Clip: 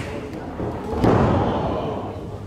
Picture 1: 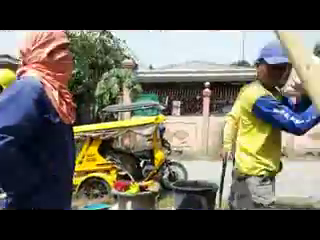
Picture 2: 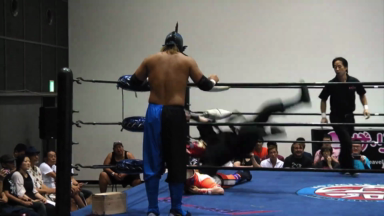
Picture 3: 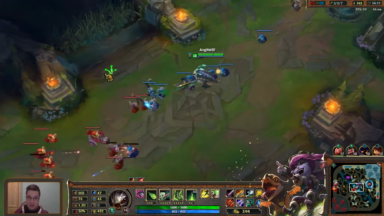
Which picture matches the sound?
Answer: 2